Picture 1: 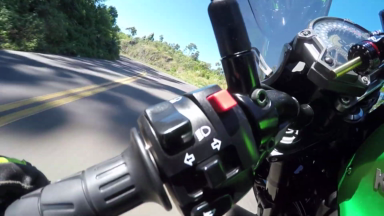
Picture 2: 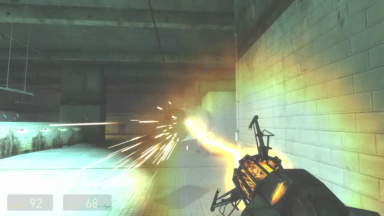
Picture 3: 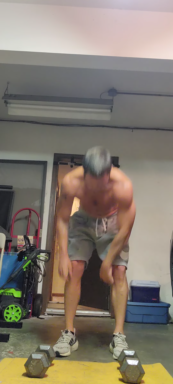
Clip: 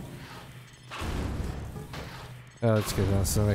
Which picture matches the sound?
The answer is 2